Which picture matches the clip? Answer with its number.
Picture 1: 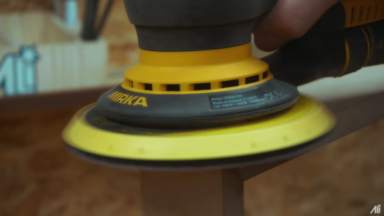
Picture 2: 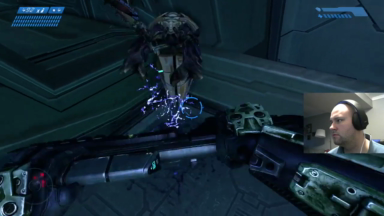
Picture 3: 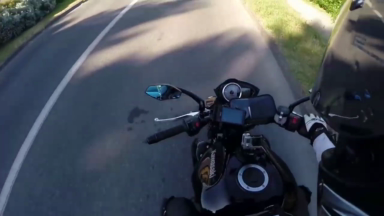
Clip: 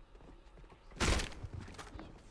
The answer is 2